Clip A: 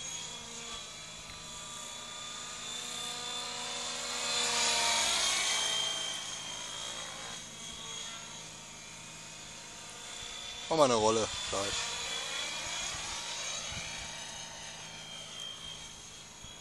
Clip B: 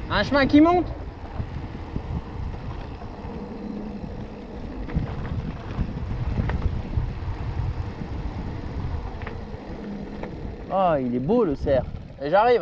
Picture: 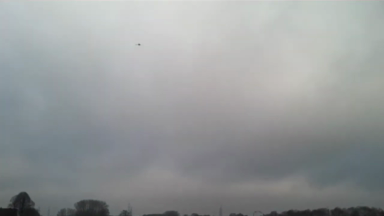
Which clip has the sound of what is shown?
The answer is A